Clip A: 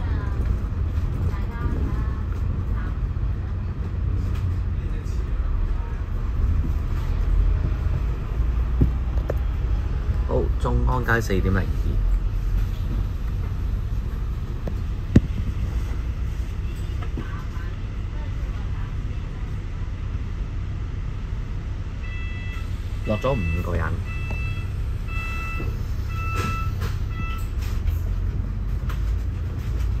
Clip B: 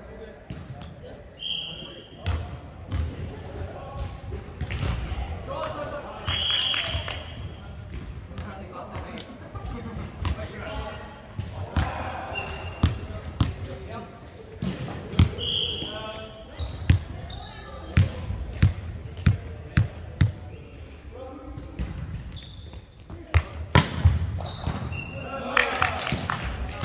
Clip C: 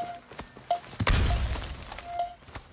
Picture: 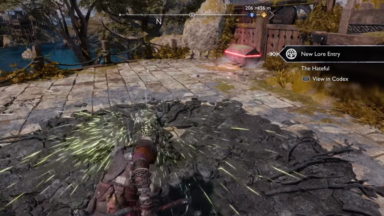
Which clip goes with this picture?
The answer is C